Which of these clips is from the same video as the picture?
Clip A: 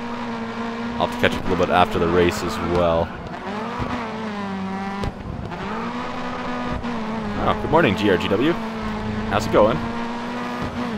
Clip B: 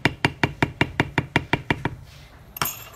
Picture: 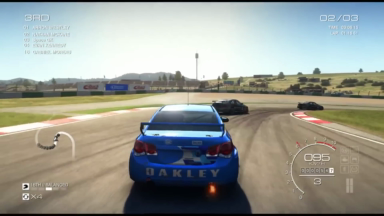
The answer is A